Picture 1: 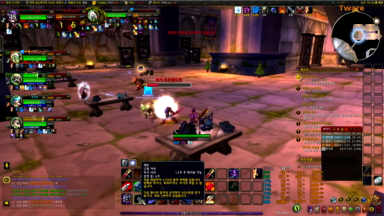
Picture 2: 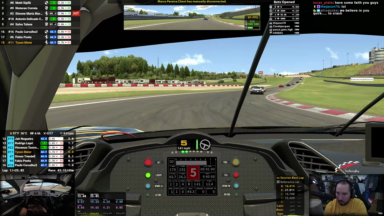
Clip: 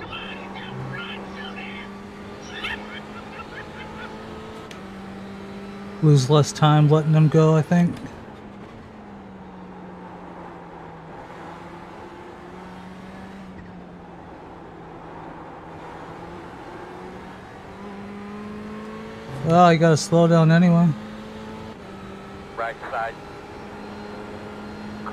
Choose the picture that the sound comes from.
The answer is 2